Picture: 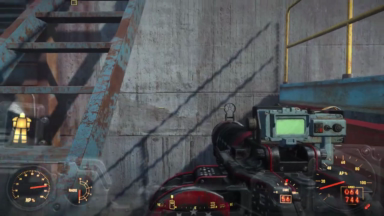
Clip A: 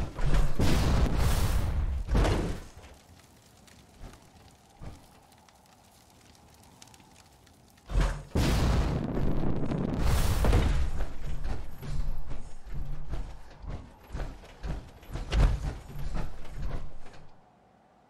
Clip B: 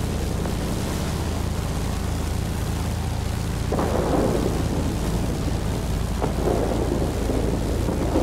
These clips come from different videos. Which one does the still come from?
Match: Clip A